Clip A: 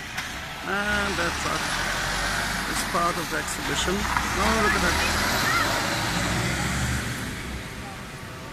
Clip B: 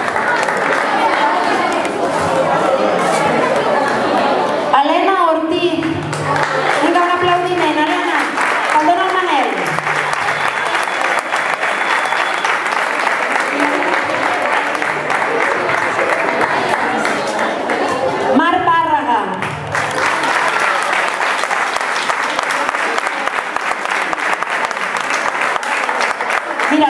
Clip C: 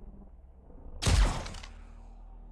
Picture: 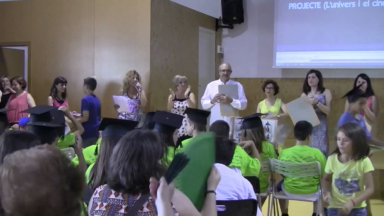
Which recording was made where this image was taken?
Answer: B